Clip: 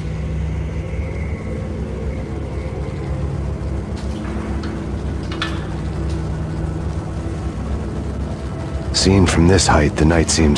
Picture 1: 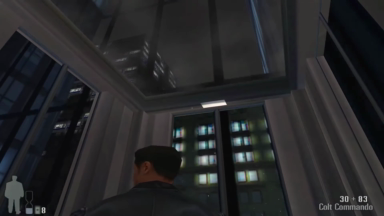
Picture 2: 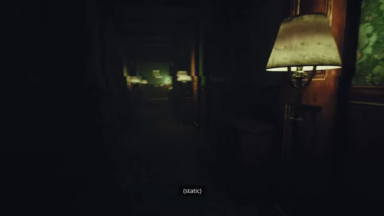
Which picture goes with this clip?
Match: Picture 1